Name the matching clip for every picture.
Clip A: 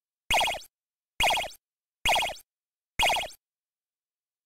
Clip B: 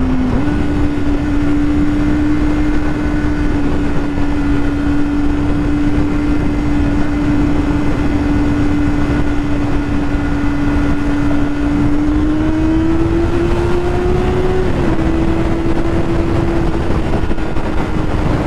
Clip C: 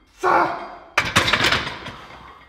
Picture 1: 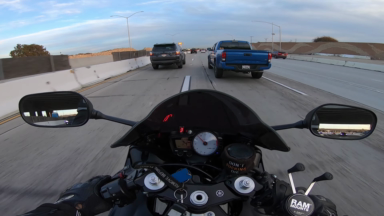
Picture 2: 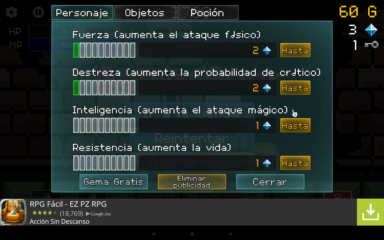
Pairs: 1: B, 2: A